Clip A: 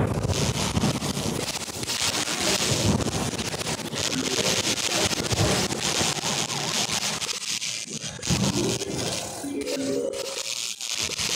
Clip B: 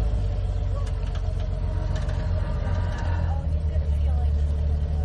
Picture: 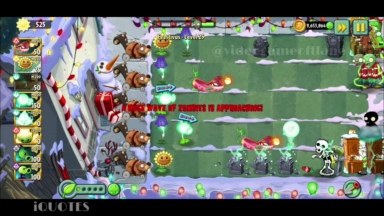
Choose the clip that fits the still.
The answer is A